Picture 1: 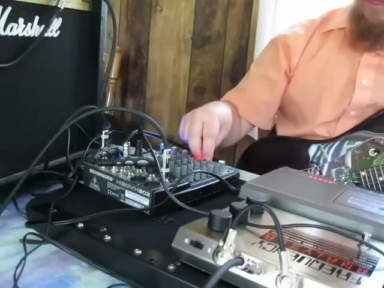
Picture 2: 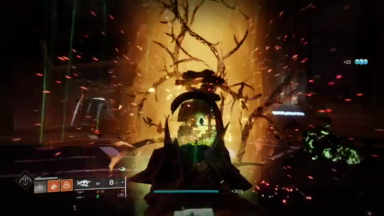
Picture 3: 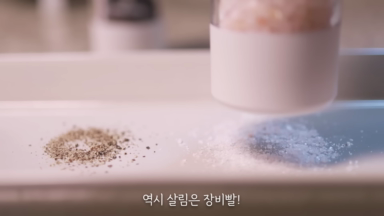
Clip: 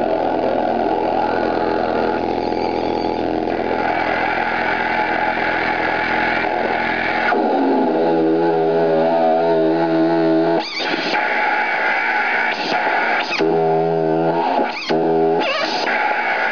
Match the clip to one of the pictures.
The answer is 1